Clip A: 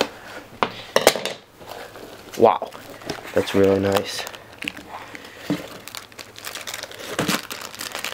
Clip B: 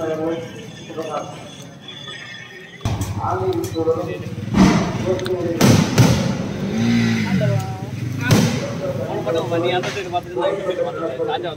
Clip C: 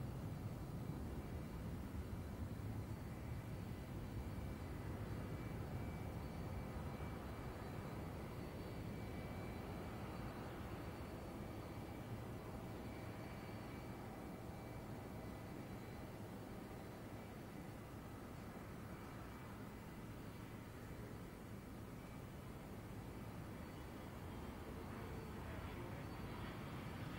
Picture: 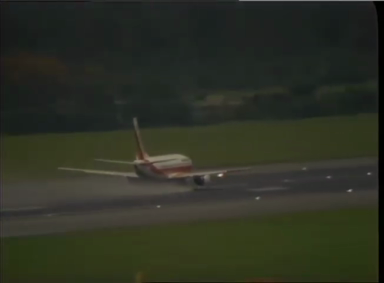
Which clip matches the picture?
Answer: C